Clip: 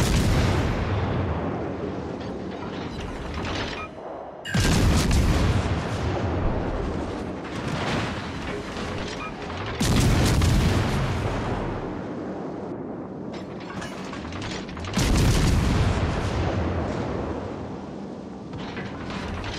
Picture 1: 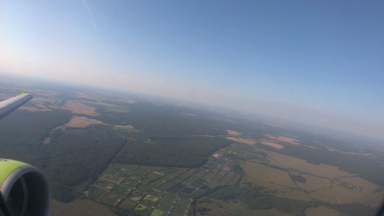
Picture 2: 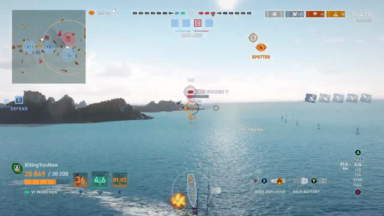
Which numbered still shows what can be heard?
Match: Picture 2